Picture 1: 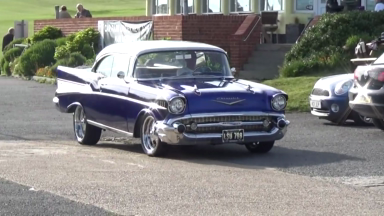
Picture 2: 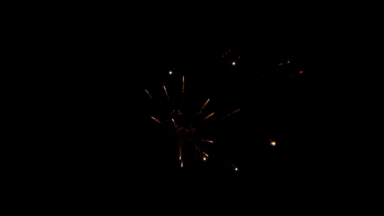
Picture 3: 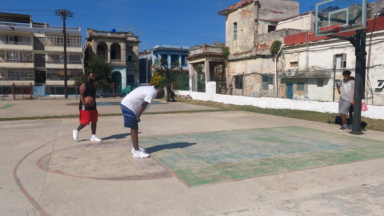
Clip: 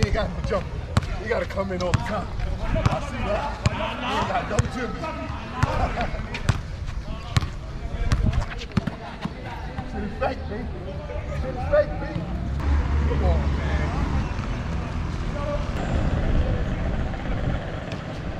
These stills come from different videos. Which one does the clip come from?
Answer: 3